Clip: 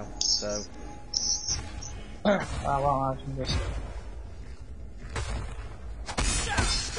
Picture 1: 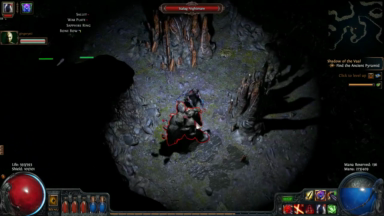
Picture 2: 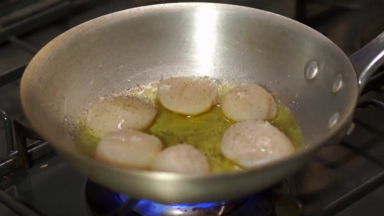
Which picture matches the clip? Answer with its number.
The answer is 1